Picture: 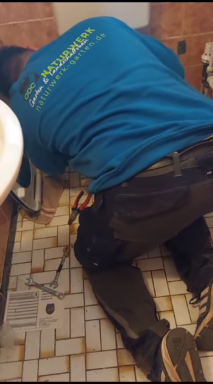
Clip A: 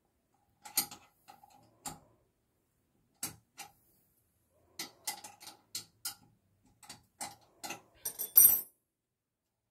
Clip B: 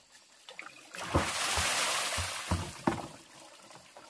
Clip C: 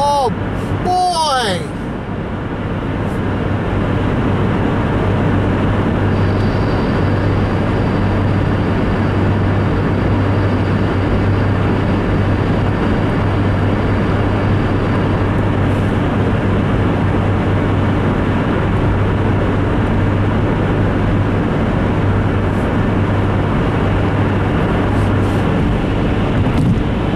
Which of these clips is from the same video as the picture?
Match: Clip A